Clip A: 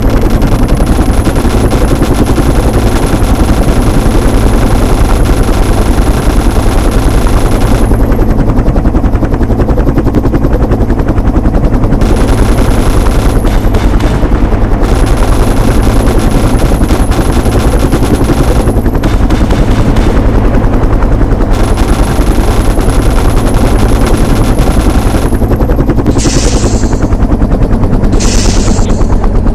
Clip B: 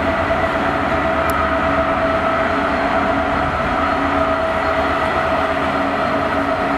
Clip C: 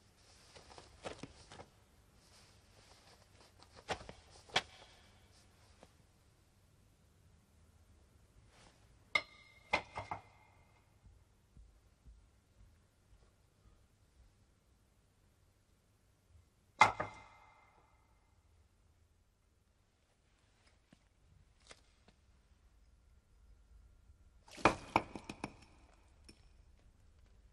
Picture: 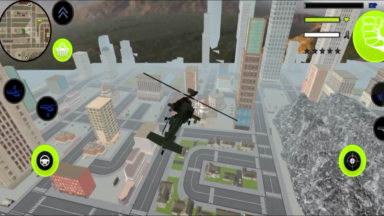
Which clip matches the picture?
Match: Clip A